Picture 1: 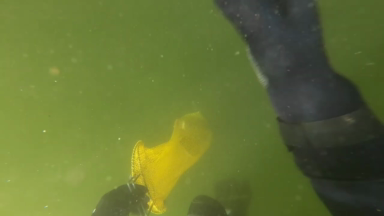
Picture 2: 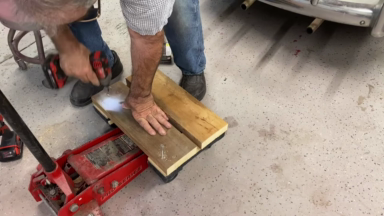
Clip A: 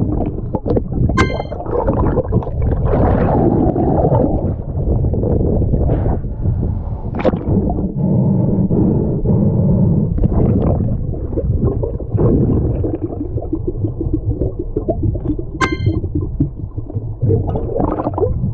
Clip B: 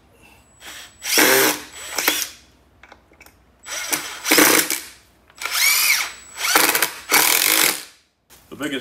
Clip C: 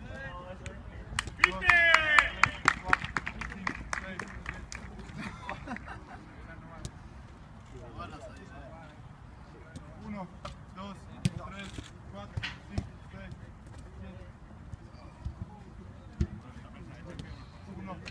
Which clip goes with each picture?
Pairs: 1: A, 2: B